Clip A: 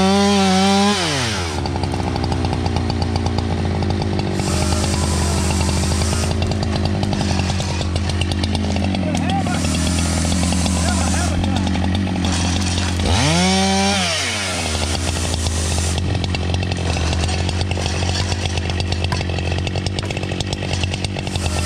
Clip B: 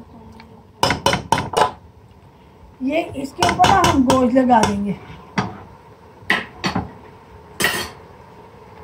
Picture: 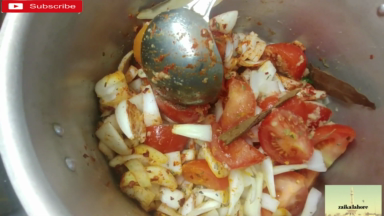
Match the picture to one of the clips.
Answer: B